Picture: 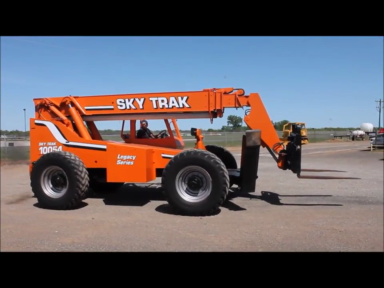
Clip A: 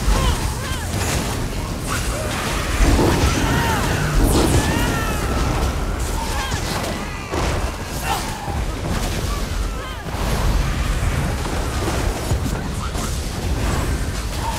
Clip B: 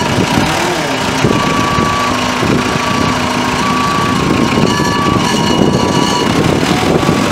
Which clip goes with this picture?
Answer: B